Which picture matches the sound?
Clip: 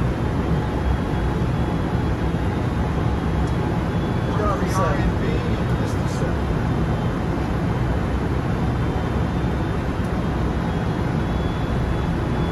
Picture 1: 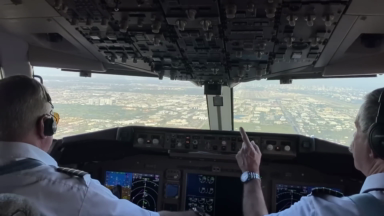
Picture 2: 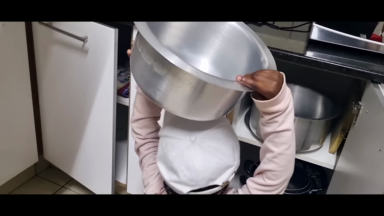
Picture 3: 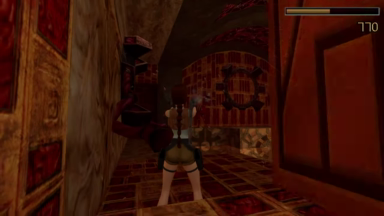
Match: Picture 1